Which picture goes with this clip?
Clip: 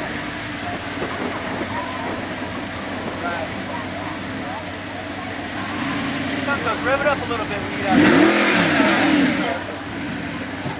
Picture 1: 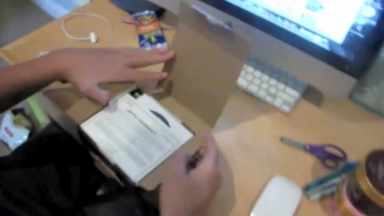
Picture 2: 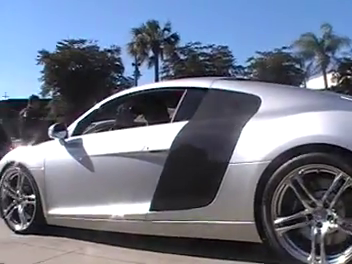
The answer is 2